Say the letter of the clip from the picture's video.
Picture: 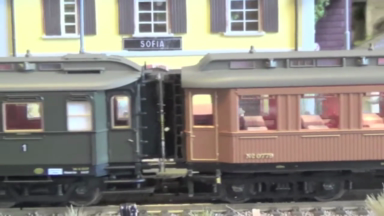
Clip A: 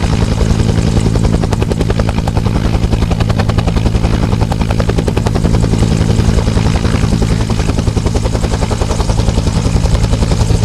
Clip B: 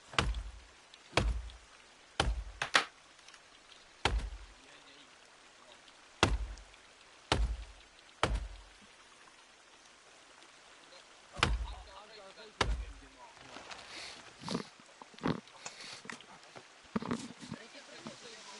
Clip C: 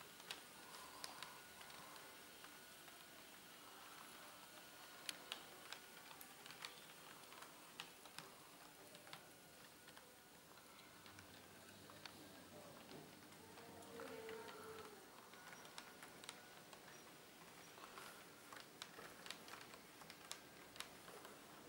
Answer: C